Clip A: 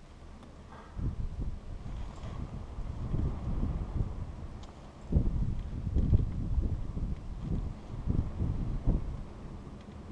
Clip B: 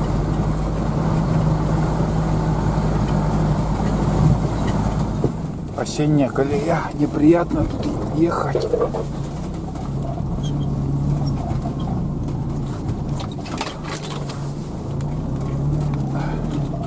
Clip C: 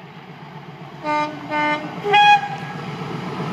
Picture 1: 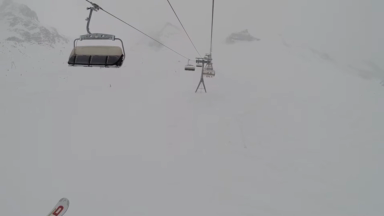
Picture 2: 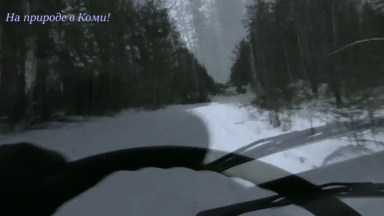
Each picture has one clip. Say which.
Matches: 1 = A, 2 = B